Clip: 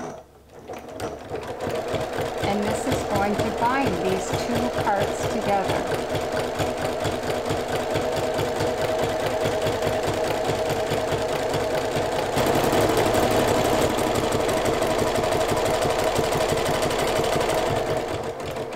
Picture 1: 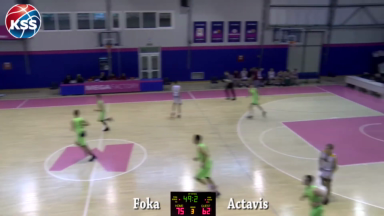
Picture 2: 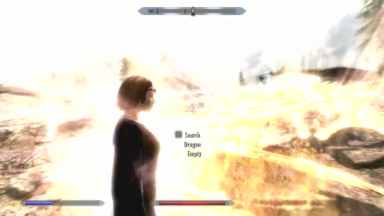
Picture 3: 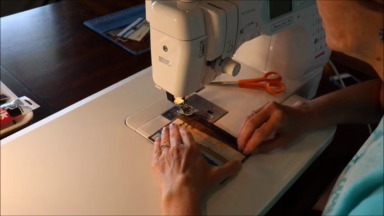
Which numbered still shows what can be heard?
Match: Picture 3